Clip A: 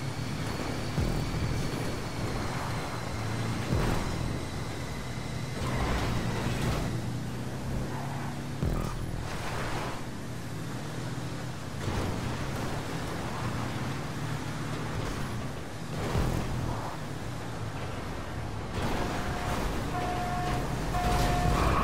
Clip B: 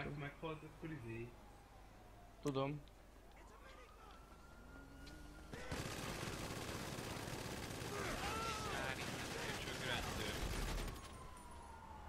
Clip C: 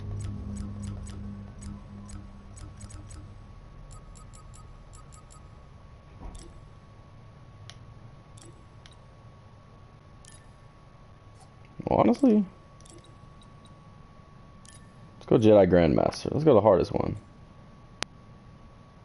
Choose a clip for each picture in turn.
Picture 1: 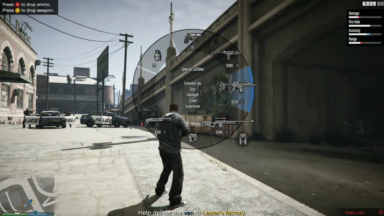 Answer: B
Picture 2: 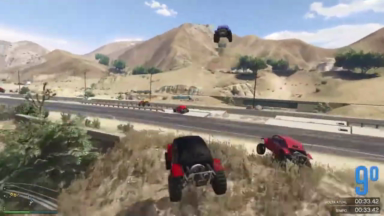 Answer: A